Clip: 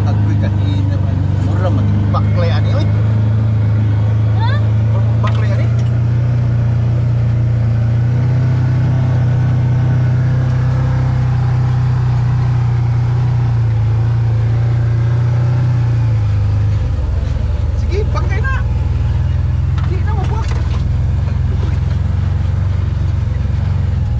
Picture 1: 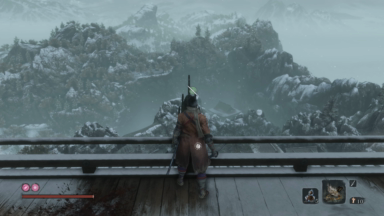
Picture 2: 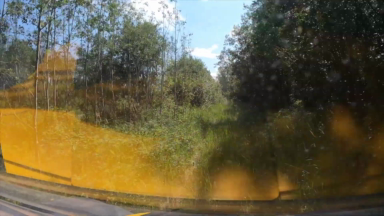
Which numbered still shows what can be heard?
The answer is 2